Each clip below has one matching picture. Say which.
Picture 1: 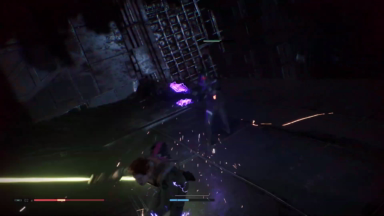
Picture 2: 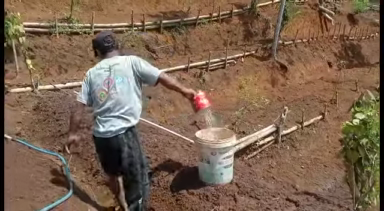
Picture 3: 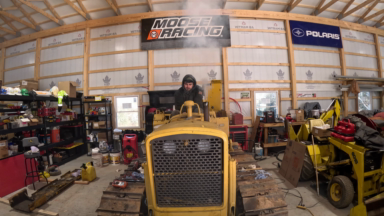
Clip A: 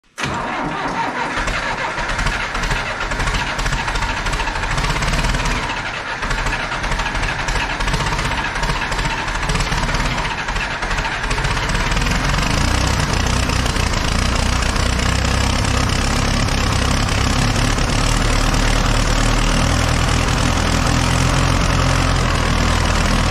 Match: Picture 3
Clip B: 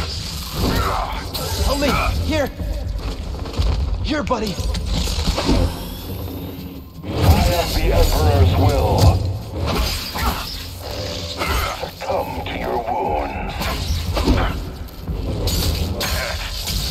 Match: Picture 1